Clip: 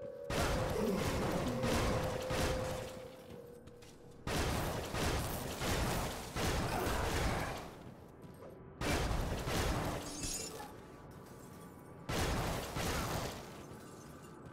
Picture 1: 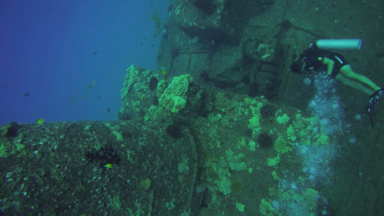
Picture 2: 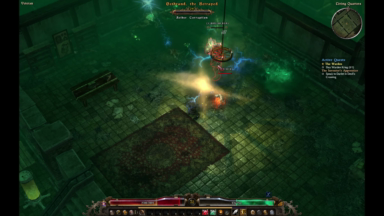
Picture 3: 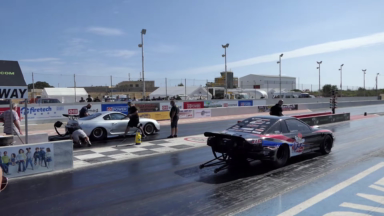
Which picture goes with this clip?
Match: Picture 2